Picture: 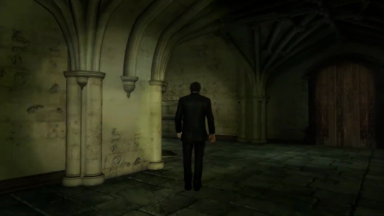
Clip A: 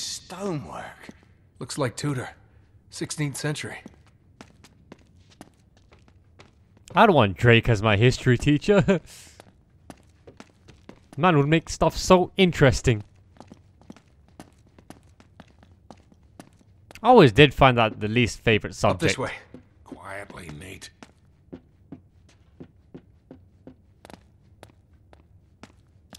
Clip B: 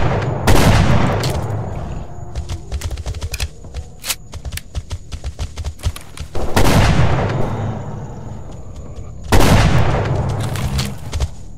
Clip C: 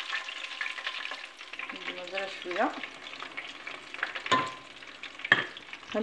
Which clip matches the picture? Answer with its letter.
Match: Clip A